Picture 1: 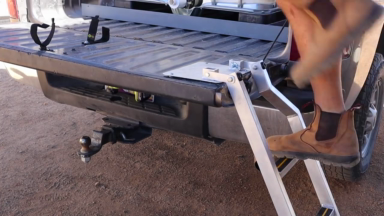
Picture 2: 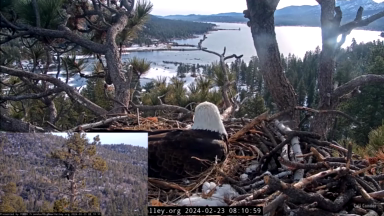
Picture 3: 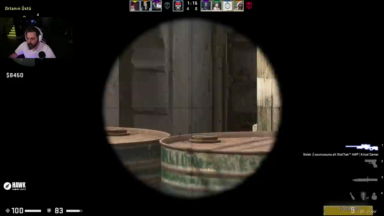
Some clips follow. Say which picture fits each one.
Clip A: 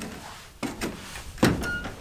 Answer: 1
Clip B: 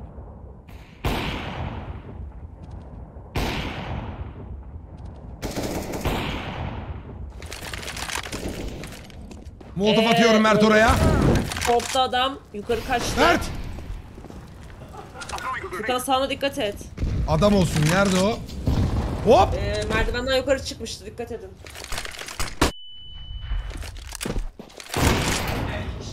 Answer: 3